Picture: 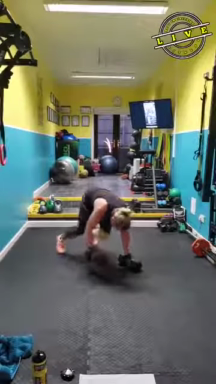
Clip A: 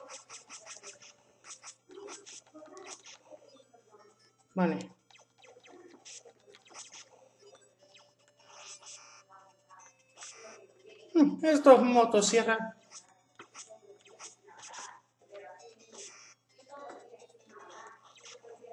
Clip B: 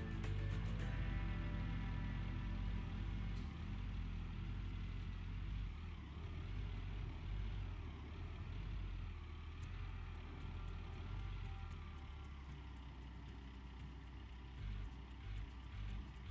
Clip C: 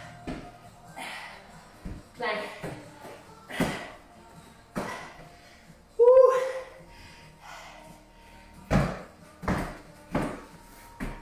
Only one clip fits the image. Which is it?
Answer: C